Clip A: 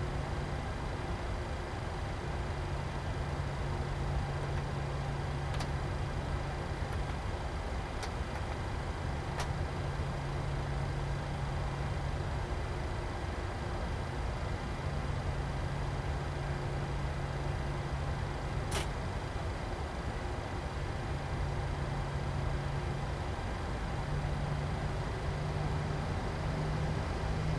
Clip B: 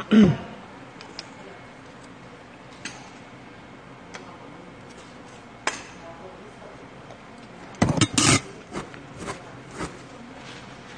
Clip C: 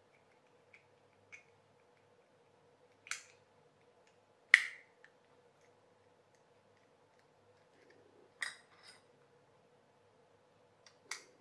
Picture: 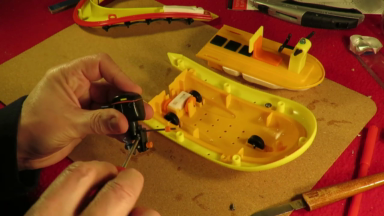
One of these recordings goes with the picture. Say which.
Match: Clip C